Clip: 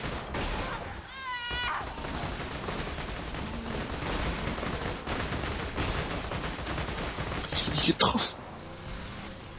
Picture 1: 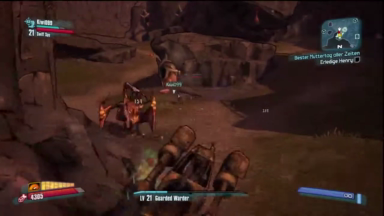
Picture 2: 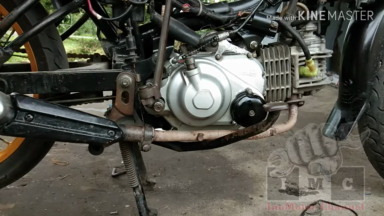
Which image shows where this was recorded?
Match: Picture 1